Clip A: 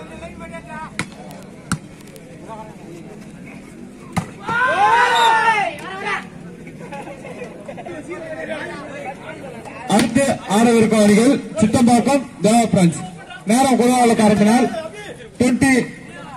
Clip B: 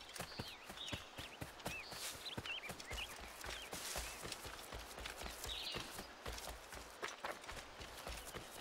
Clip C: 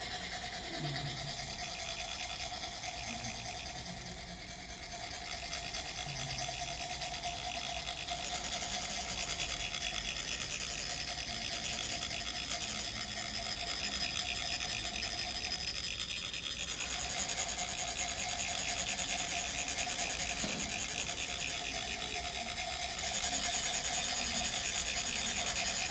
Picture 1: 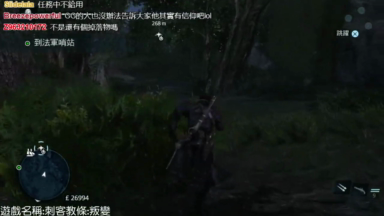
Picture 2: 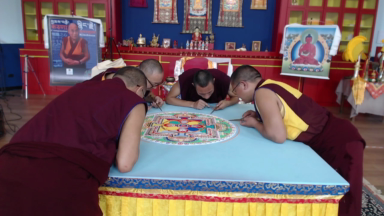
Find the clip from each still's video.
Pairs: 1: B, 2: C